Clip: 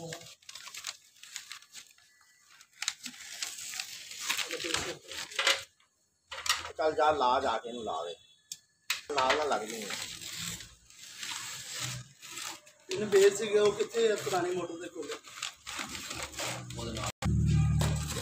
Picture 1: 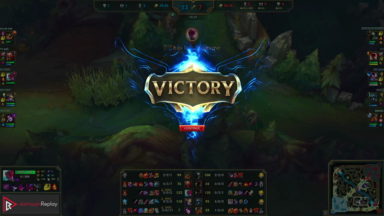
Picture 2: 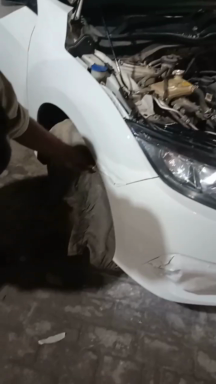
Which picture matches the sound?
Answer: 2